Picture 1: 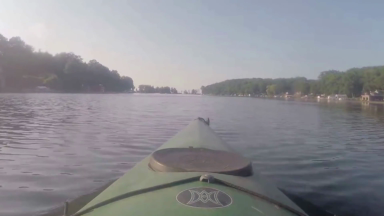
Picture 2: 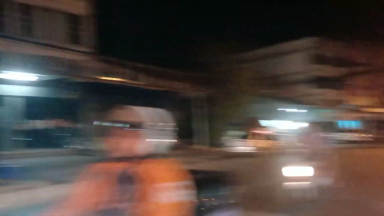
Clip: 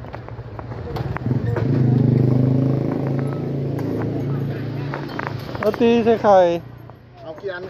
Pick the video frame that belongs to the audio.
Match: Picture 2